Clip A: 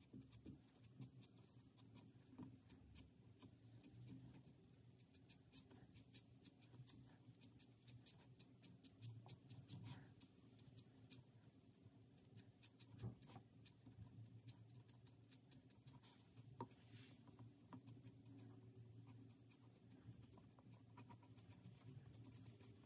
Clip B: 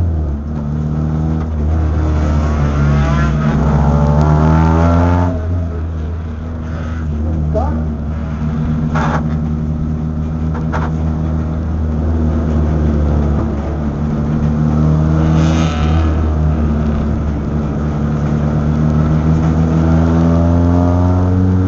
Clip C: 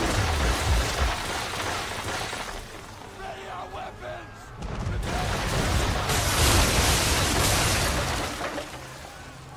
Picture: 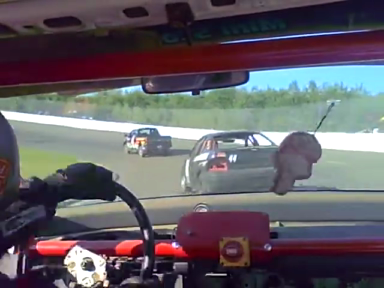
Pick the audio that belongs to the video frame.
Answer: B